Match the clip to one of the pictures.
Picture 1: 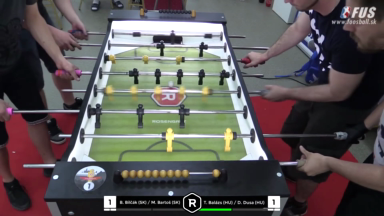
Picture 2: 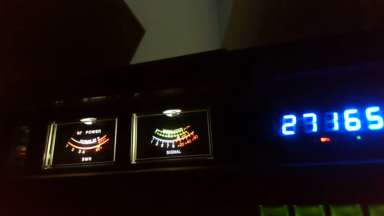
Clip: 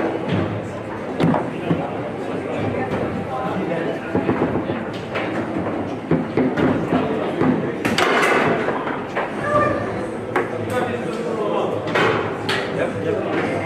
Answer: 1